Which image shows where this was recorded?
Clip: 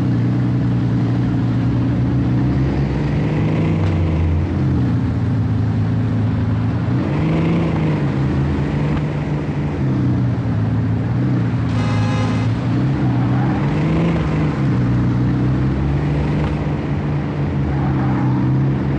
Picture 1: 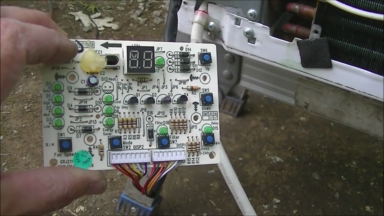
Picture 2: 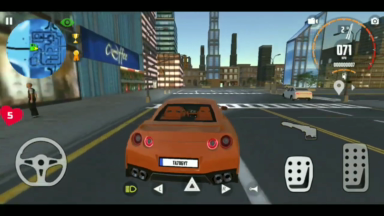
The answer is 2